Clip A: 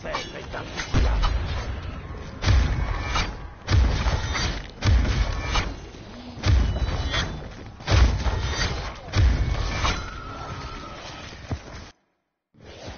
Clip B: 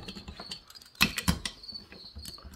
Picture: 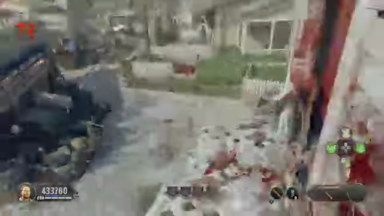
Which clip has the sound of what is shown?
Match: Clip A